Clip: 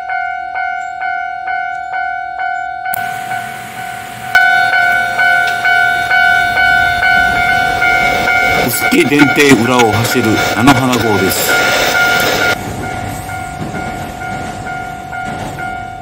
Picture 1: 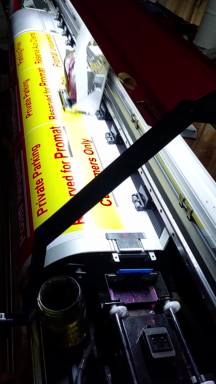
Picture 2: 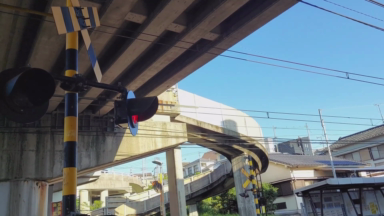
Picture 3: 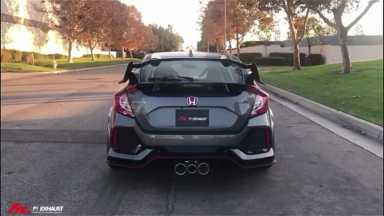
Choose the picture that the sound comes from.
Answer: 2